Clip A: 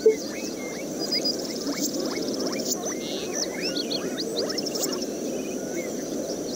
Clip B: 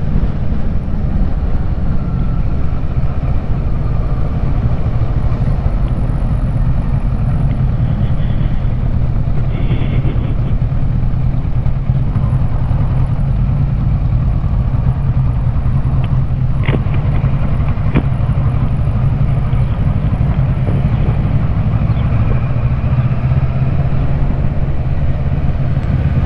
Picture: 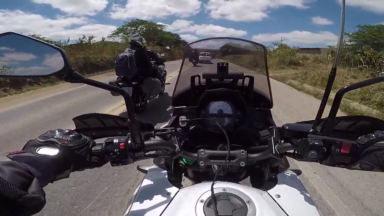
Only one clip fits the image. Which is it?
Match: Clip B